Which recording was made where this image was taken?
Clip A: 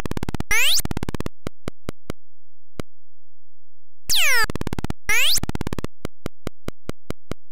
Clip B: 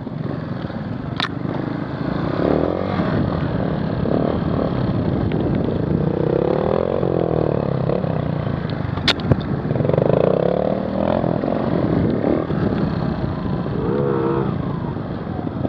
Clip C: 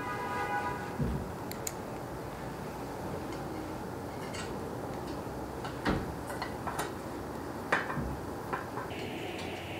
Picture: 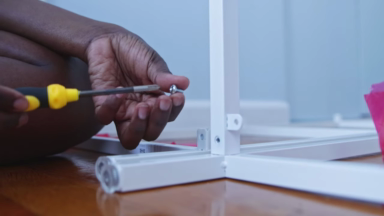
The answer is C